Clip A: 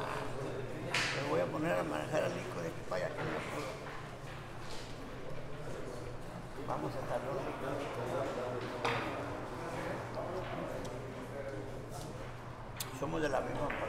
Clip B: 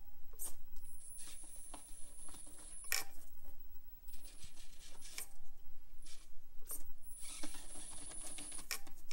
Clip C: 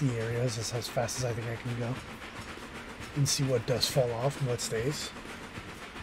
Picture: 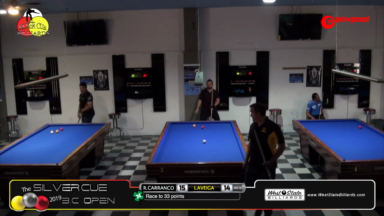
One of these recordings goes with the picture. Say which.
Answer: A